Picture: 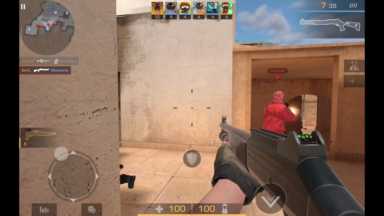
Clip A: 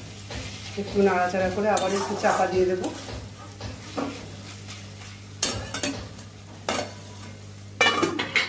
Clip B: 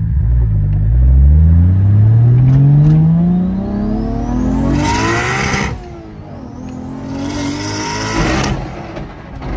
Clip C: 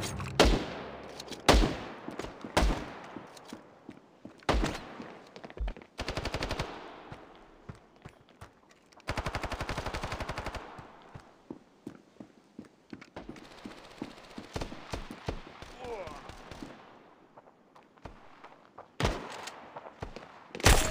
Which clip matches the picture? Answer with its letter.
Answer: C